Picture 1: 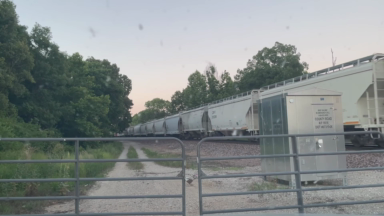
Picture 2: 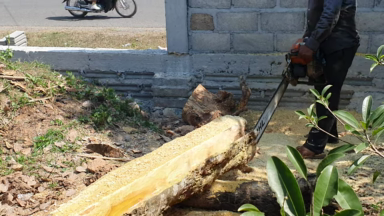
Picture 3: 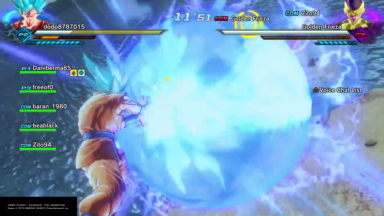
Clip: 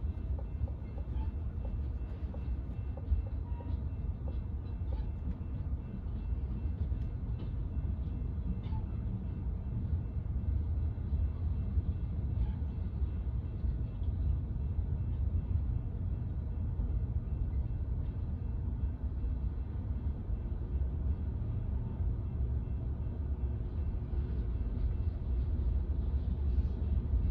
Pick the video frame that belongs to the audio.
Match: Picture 1